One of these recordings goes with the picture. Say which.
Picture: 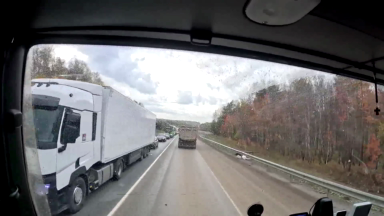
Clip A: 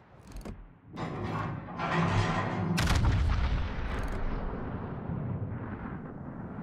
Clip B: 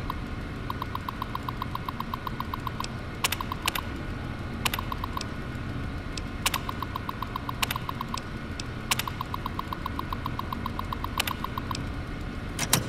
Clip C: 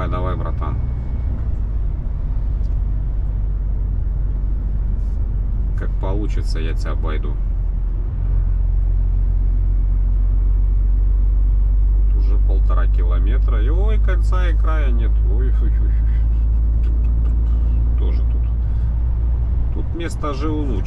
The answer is C